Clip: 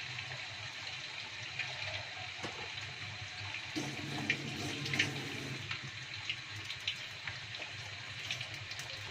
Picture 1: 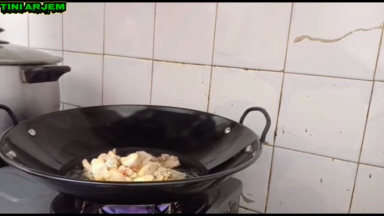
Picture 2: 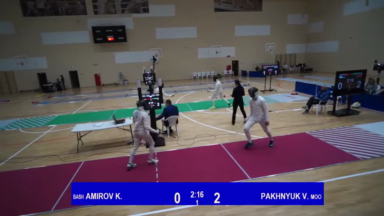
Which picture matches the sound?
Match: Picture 1